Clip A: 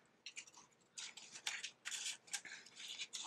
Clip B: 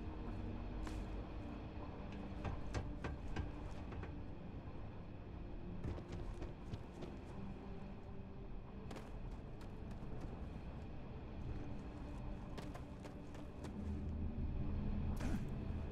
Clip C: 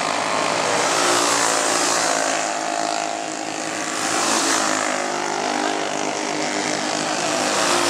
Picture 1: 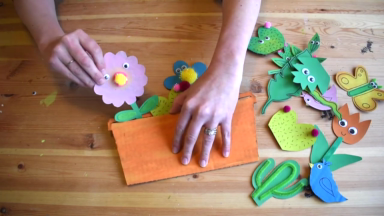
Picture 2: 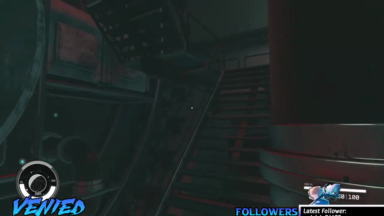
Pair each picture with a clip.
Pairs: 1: A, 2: B